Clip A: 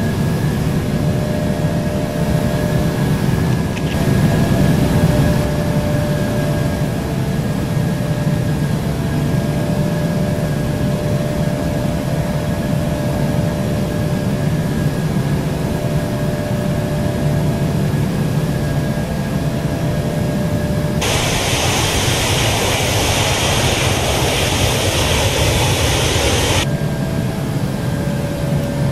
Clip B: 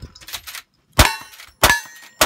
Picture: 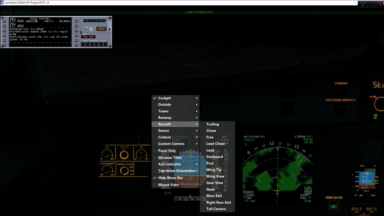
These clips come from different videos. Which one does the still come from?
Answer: A